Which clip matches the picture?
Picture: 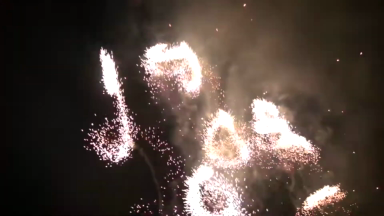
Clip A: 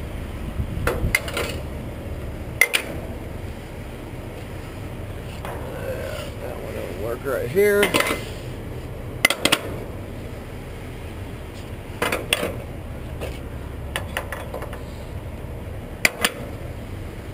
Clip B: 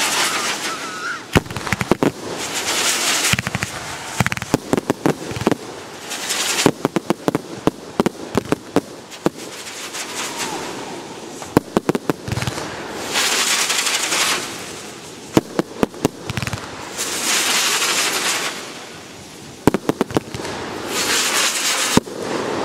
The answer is B